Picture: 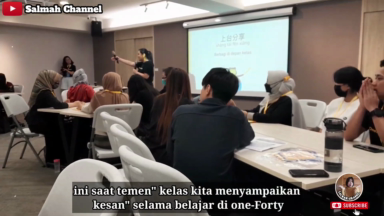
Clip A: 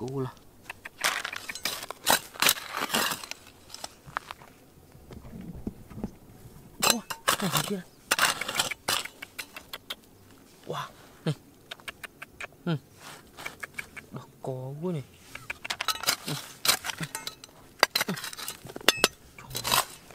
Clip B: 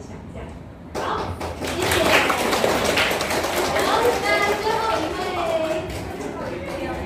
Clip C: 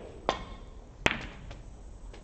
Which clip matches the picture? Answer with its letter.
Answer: B